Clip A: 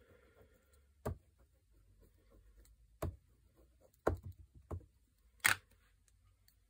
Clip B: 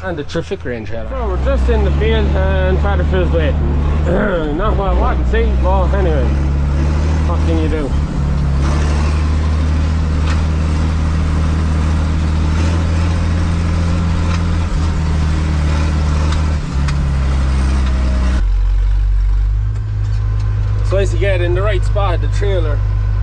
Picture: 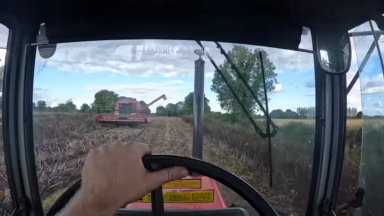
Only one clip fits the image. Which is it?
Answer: B